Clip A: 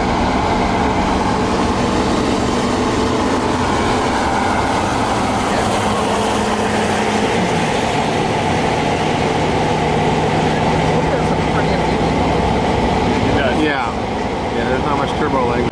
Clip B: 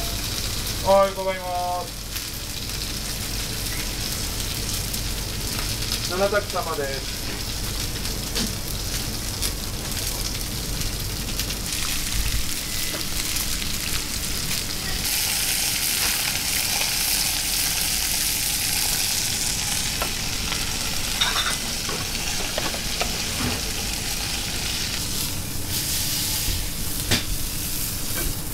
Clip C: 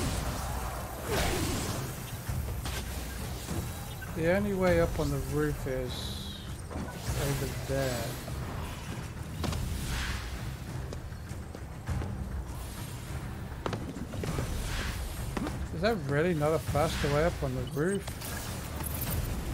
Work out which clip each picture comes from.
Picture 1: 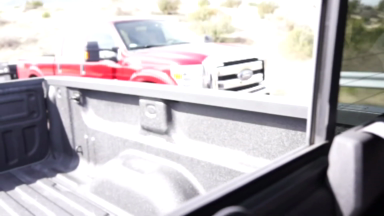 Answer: A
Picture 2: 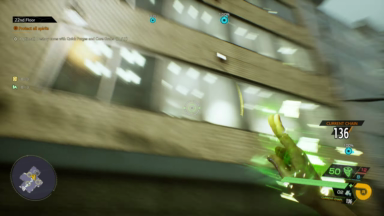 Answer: C